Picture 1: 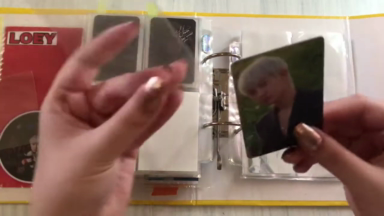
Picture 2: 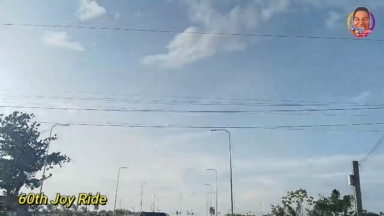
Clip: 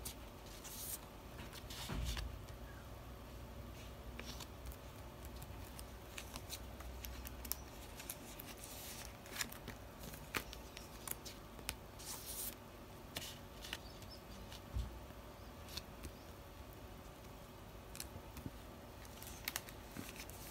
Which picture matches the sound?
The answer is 1